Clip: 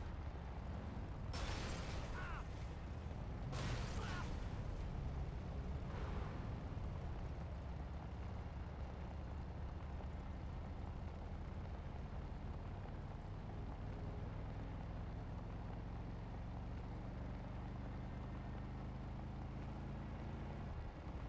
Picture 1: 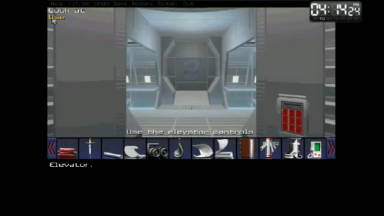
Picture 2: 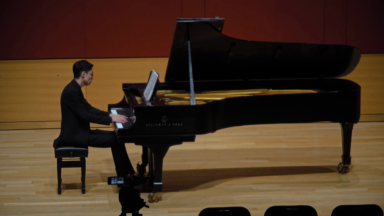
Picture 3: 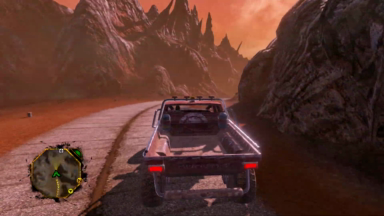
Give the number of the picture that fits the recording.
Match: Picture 3